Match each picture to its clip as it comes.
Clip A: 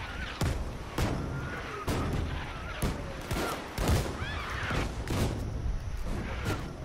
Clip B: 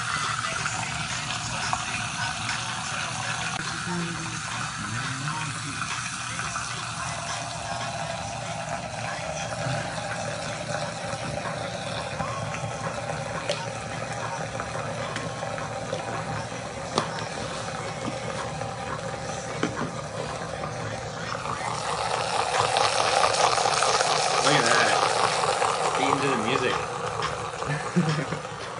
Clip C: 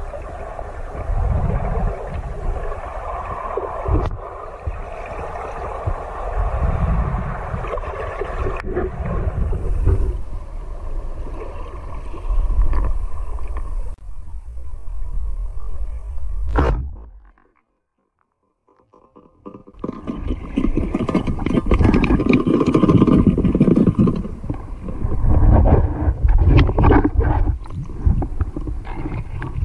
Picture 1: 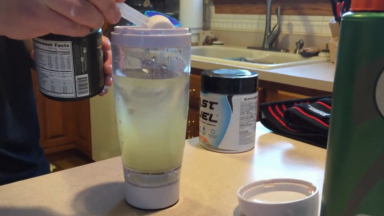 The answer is B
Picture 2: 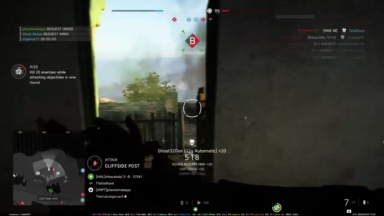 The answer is A